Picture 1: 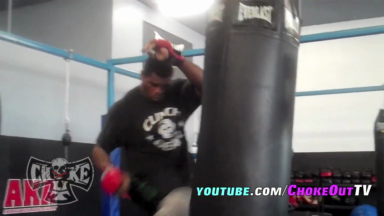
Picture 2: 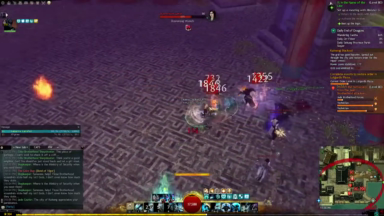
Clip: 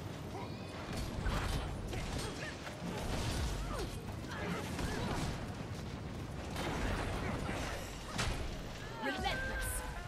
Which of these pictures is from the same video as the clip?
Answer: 2